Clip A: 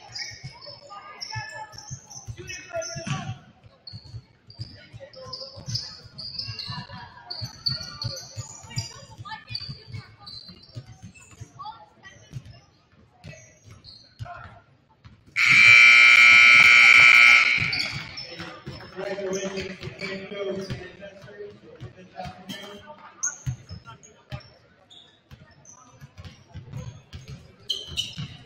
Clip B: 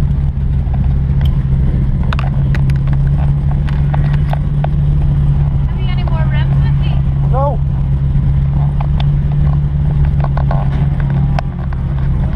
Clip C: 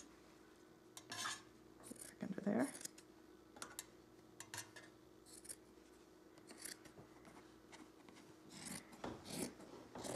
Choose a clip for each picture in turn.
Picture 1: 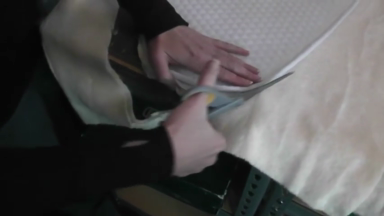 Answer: C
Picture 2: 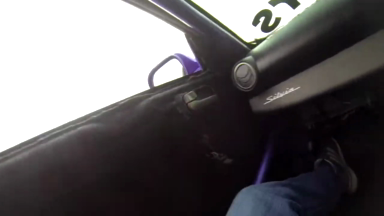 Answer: B